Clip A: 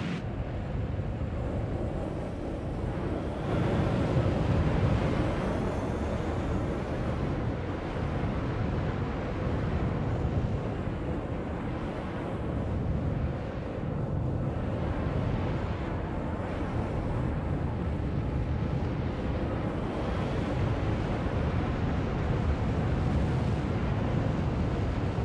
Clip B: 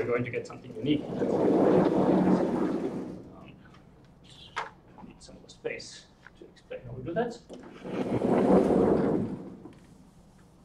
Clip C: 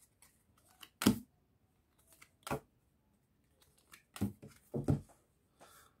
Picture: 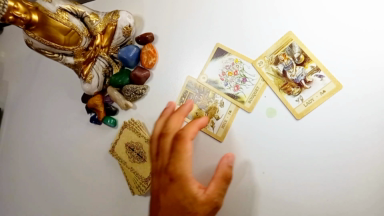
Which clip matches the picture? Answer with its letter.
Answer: C